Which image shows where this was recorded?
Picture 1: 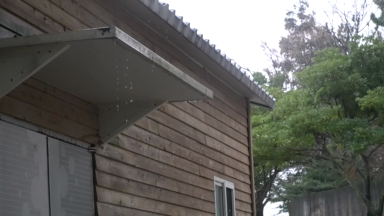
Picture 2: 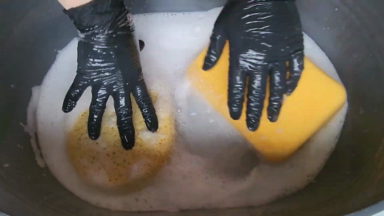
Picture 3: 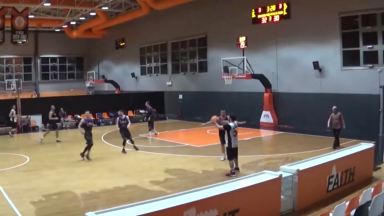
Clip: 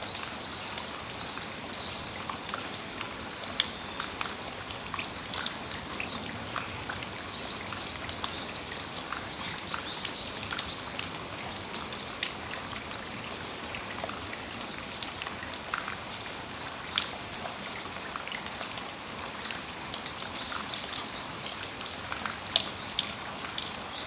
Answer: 1